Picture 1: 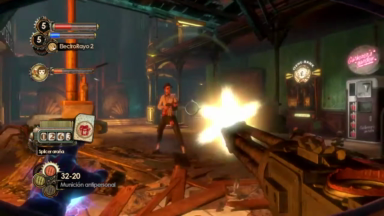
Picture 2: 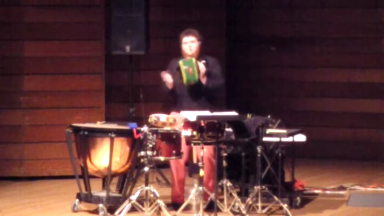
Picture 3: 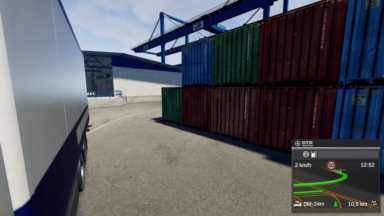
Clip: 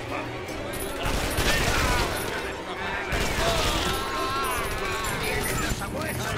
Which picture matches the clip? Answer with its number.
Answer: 1